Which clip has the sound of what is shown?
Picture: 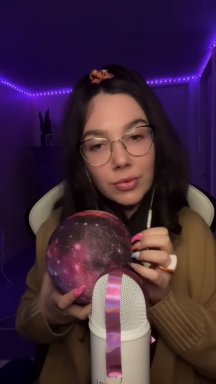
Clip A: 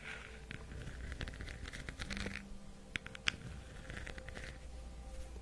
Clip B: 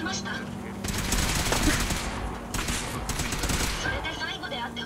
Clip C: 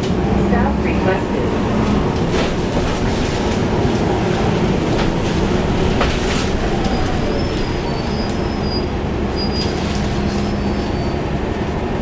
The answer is A